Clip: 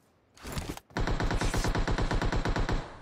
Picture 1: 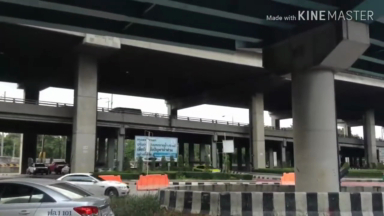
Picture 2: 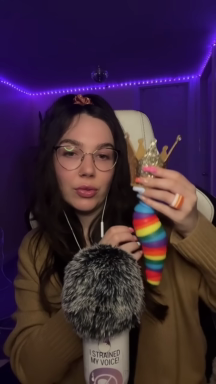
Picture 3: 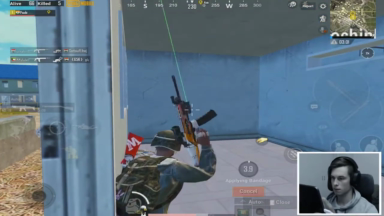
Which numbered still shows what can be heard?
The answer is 3